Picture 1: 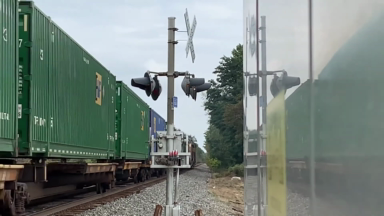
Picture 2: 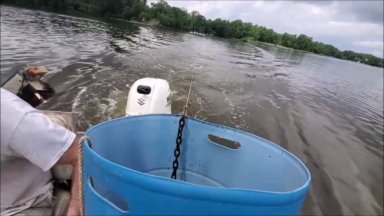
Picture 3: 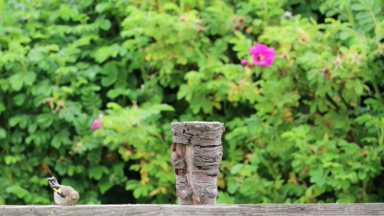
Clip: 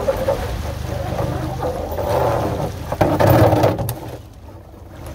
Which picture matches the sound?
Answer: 2